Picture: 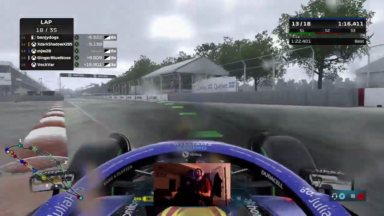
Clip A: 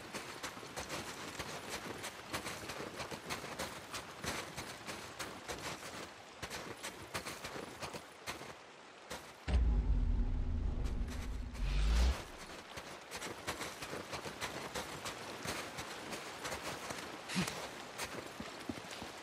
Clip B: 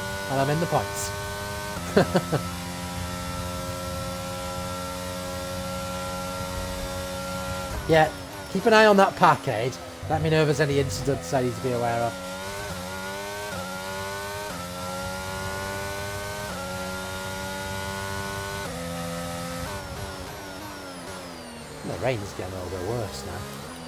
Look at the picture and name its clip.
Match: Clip B